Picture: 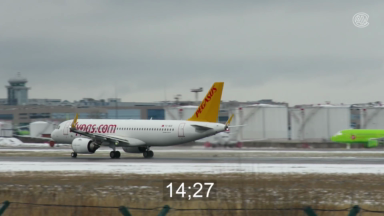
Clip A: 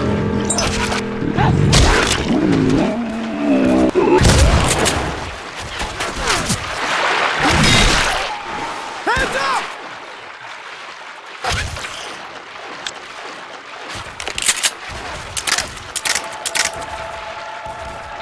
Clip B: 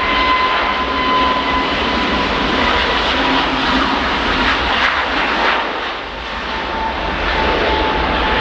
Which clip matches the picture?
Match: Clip B